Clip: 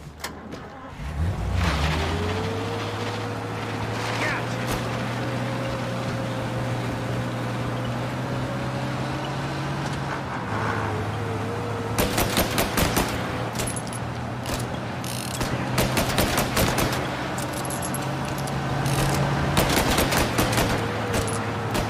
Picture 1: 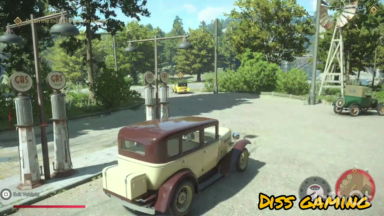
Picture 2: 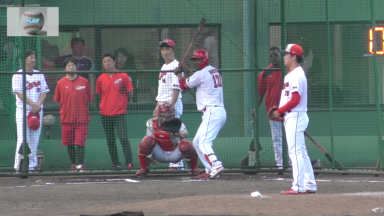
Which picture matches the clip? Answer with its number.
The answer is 1